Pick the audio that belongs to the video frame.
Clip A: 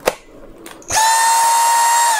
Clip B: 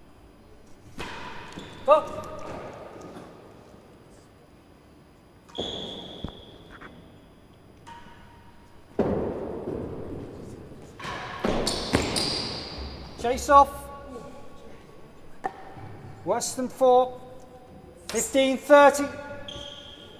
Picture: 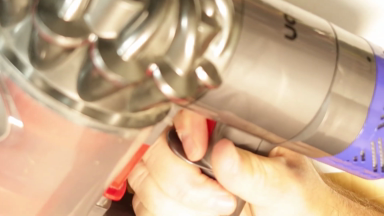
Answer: A